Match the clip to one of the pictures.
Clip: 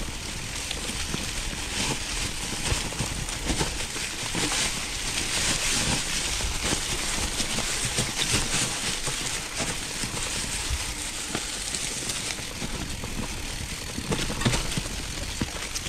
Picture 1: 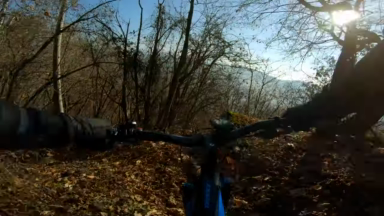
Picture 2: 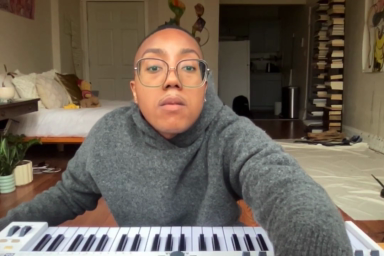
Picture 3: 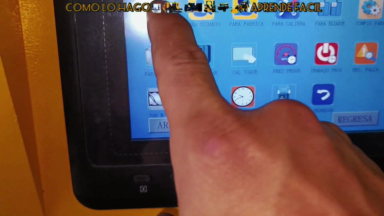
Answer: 1